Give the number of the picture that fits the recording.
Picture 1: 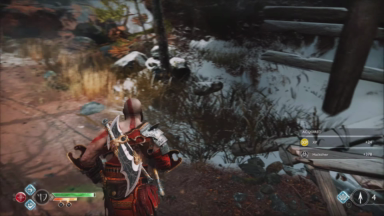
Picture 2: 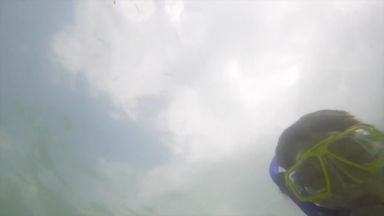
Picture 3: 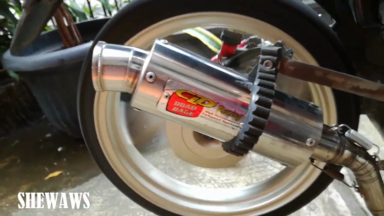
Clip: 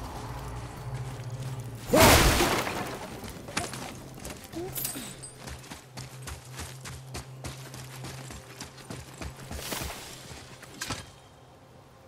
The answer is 1